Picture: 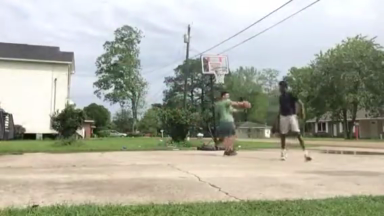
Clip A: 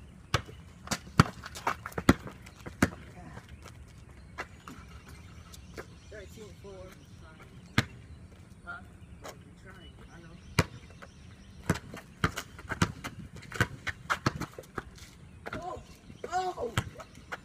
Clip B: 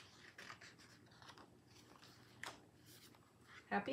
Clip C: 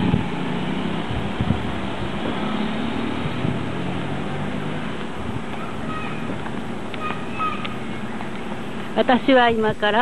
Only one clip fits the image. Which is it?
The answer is A